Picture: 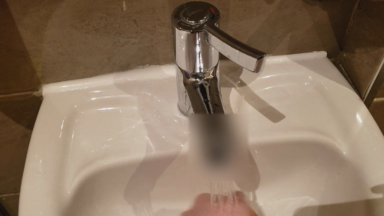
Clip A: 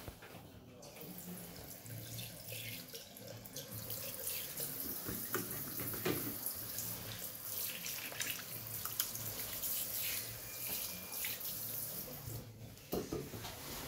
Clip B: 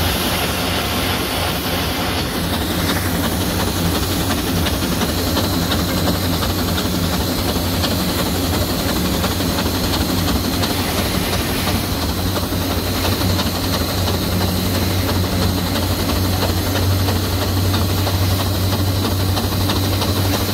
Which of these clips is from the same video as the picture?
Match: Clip A